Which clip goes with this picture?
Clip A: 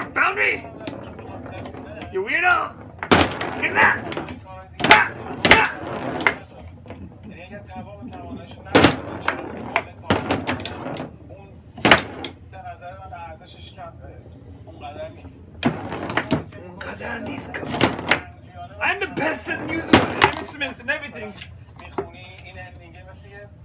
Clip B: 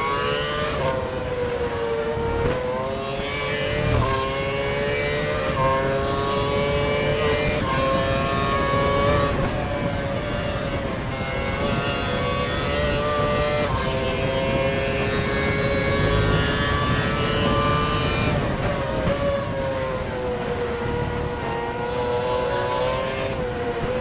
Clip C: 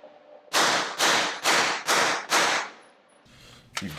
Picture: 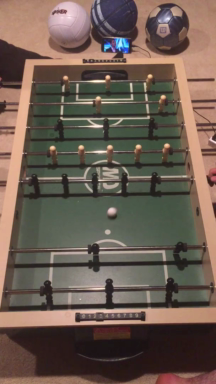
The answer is A